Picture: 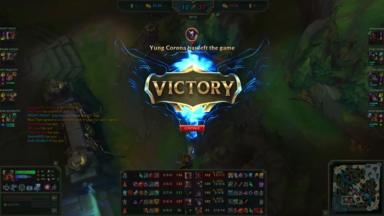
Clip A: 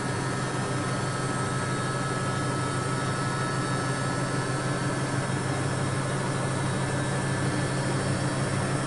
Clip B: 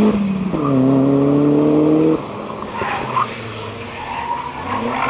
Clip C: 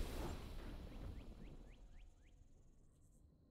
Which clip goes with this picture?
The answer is C